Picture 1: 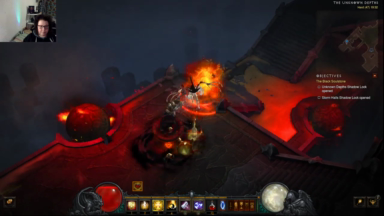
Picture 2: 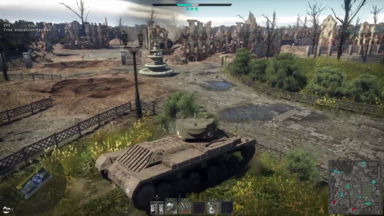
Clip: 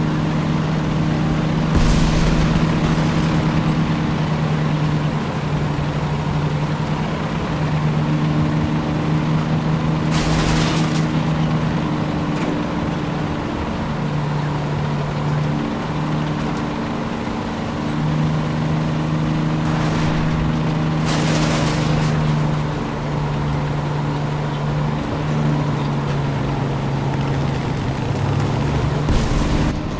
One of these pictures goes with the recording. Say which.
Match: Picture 2